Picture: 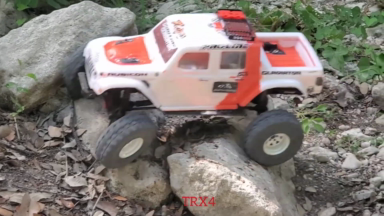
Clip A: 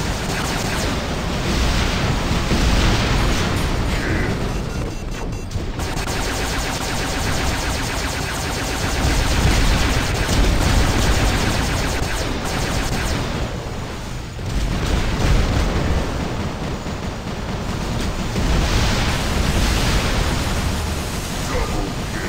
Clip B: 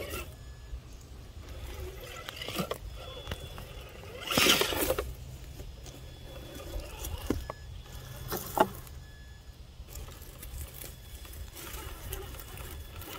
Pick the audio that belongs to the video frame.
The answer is B